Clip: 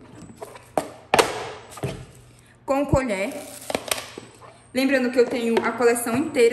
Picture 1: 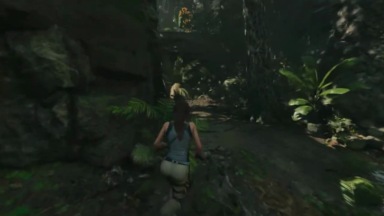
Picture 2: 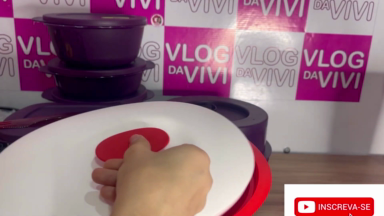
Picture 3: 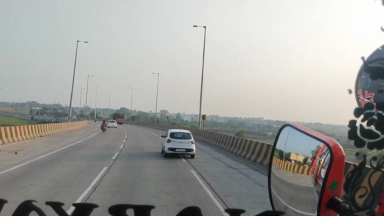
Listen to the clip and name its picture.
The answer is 2